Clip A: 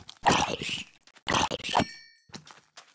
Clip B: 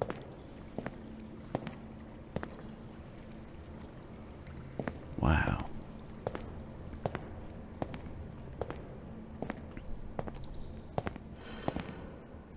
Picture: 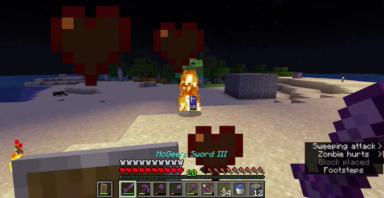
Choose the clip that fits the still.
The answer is A